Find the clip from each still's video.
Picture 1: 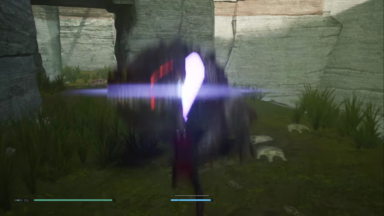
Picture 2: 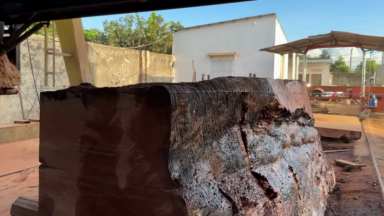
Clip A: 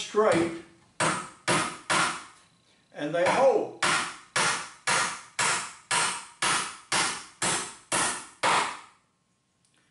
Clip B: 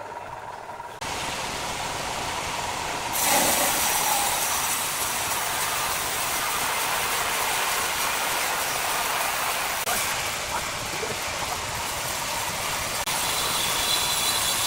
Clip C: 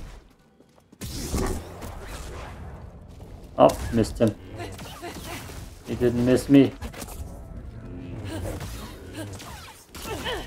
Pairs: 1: C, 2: B